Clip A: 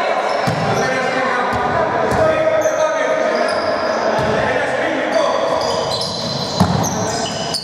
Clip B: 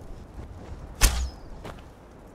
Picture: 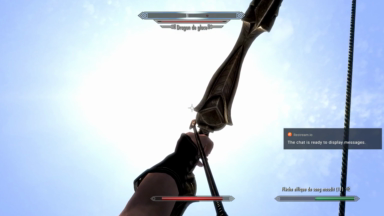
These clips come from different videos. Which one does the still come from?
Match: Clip B